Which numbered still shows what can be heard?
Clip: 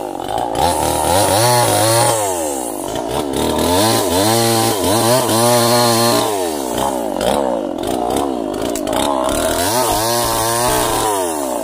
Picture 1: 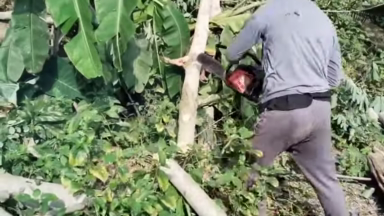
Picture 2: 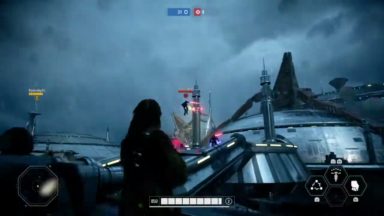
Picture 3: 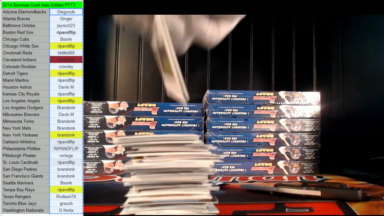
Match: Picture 1